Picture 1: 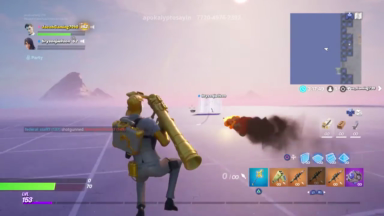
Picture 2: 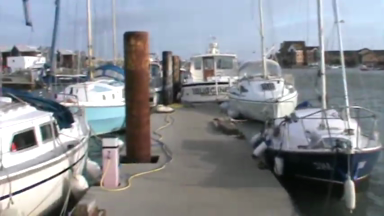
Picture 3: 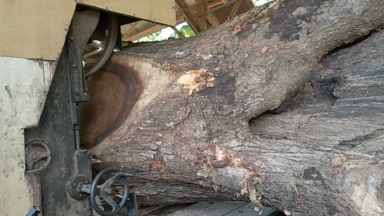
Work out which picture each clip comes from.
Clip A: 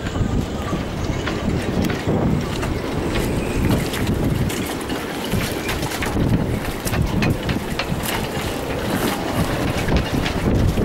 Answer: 2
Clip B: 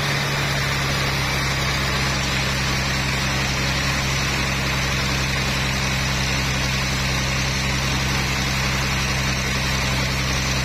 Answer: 3